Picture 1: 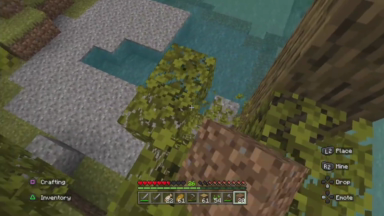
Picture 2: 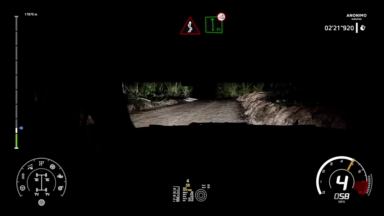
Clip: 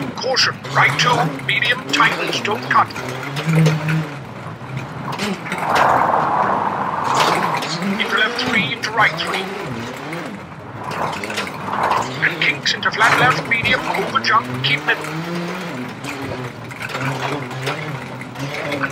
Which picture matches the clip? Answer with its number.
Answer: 2